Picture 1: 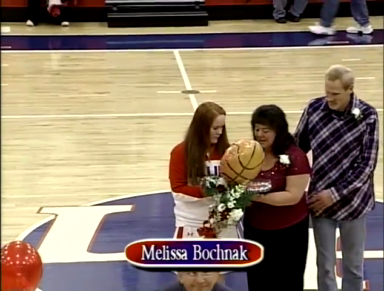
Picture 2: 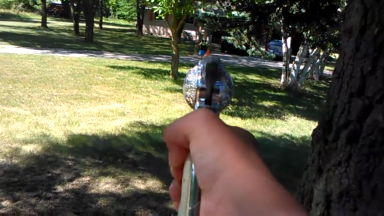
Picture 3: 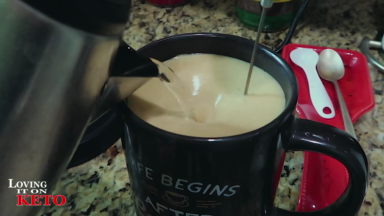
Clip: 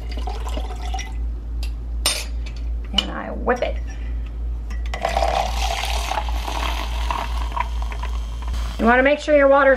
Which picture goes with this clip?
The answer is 3